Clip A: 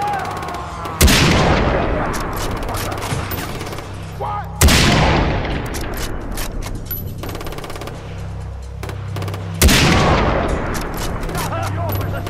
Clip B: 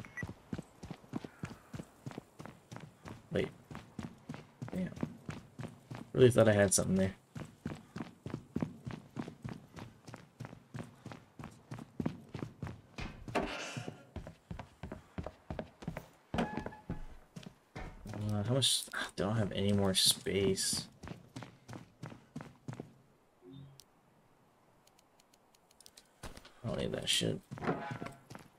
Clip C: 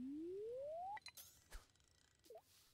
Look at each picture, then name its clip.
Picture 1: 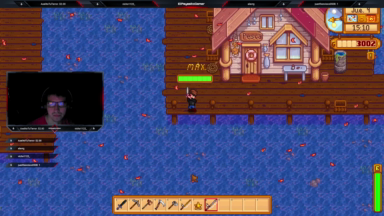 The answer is C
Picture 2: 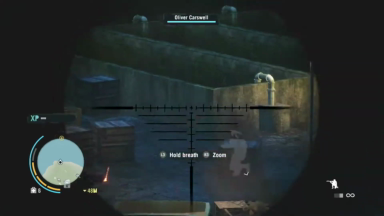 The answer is A